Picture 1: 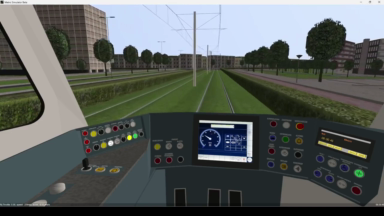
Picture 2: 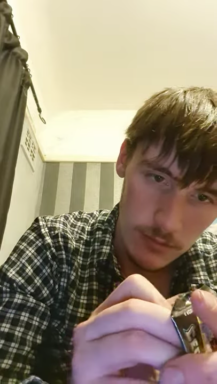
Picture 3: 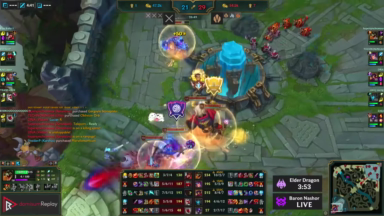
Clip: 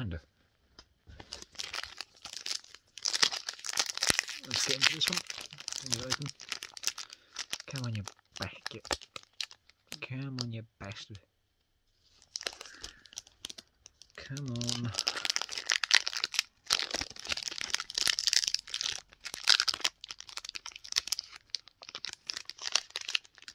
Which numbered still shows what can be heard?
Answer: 2